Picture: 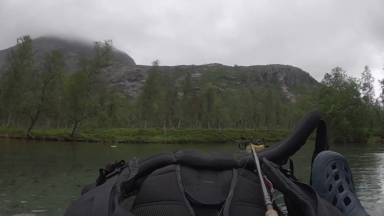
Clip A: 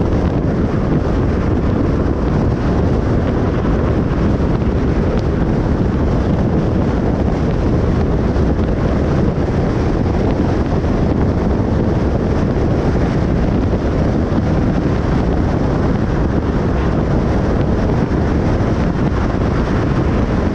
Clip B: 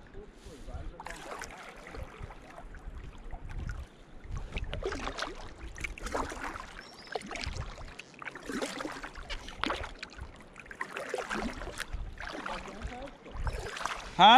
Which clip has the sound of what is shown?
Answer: B